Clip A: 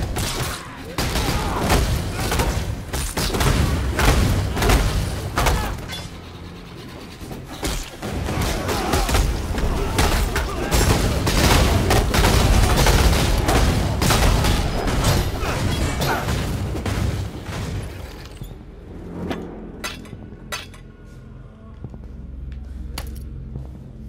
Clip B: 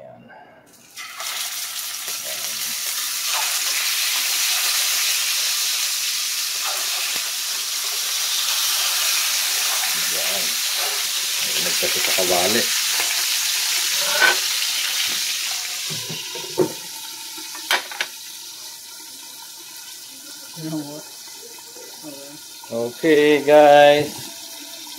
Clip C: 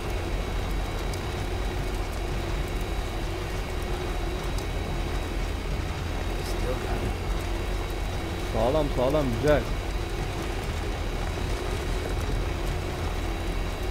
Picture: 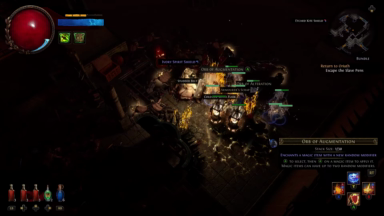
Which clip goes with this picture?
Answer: A